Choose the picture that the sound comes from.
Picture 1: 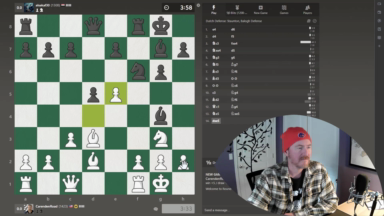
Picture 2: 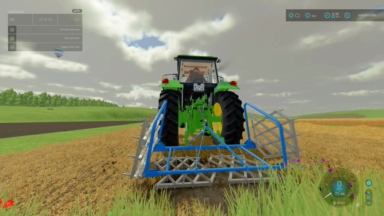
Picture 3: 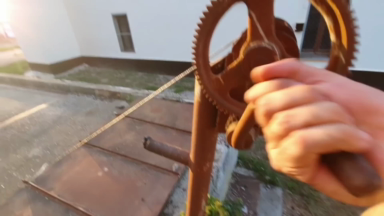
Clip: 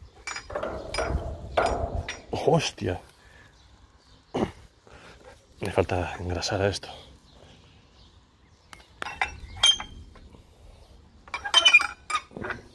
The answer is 3